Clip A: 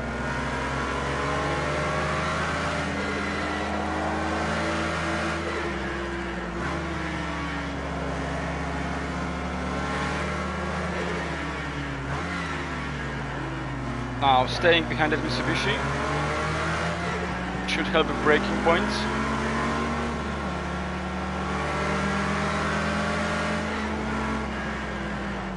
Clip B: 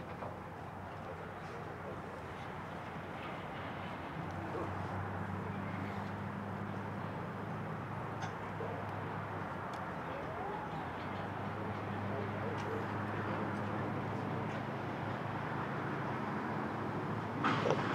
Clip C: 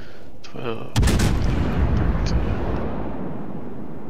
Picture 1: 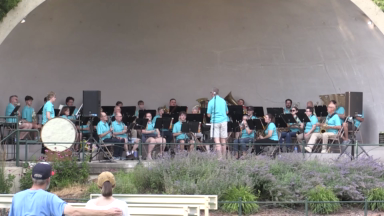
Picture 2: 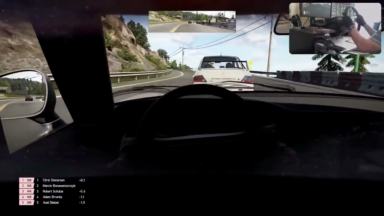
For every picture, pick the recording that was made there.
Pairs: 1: B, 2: A